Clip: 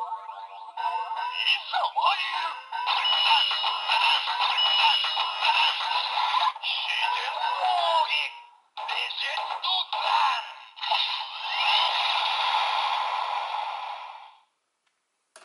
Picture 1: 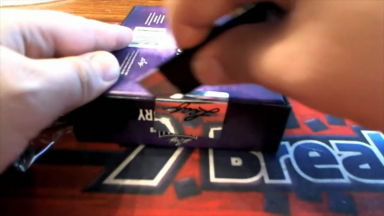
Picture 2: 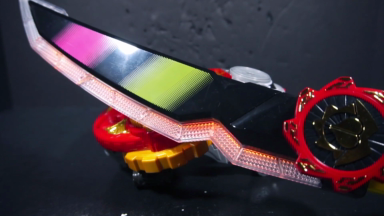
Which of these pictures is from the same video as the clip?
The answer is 2